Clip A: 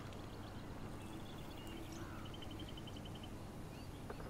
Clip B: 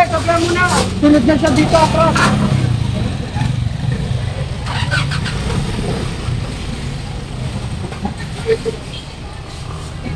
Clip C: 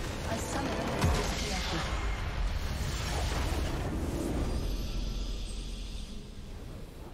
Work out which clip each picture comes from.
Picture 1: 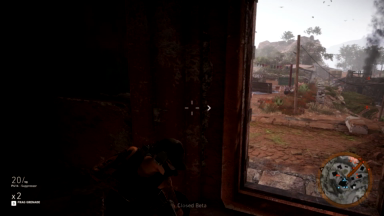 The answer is A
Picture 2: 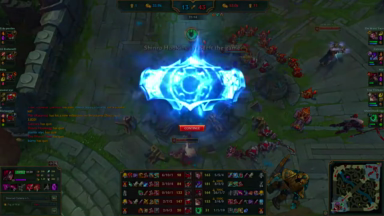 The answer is C